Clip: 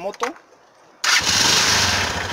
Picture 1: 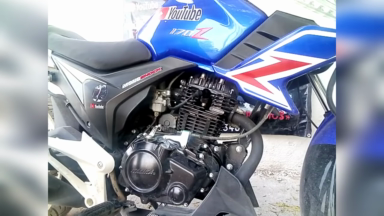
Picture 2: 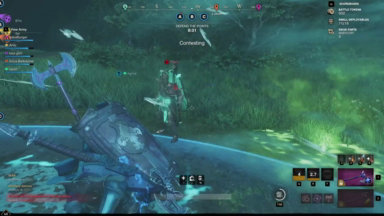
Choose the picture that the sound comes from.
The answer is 1